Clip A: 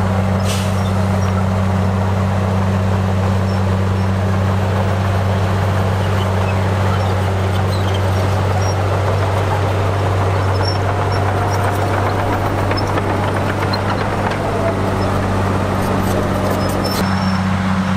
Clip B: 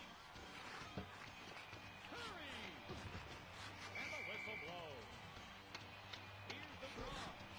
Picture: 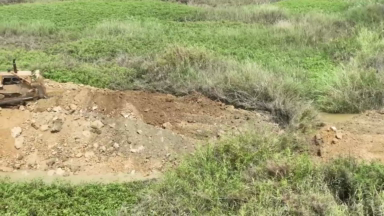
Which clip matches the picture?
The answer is A